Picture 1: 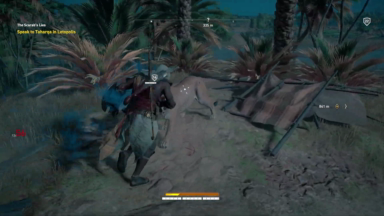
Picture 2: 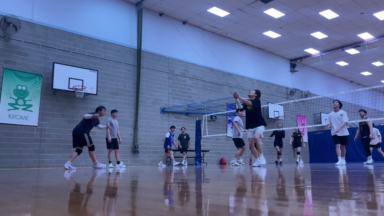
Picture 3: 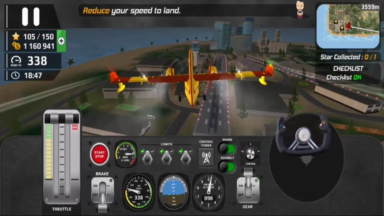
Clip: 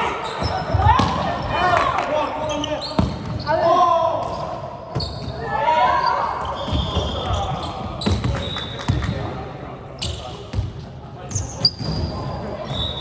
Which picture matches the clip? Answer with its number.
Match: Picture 2